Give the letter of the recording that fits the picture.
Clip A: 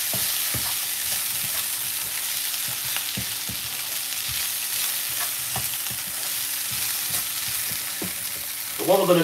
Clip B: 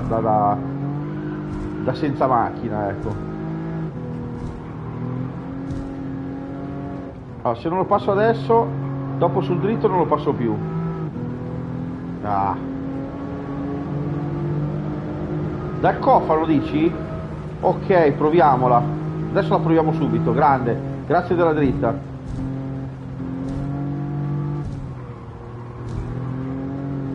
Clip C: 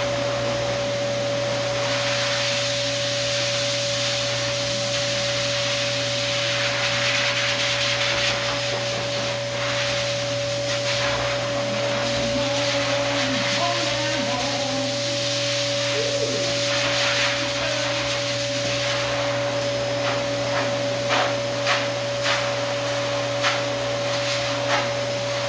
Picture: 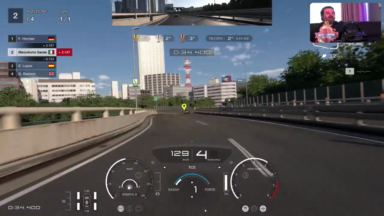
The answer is B